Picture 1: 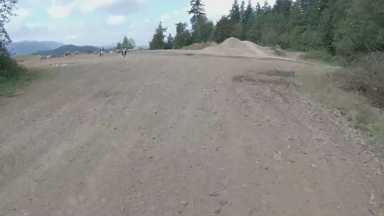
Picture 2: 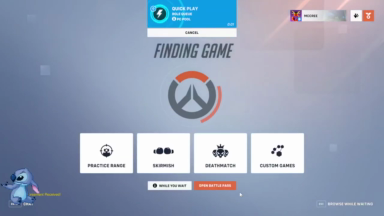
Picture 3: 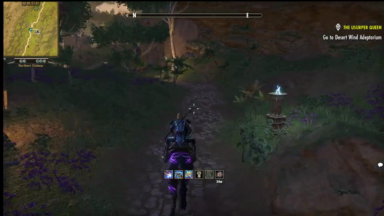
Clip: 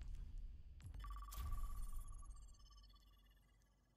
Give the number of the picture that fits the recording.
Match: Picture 2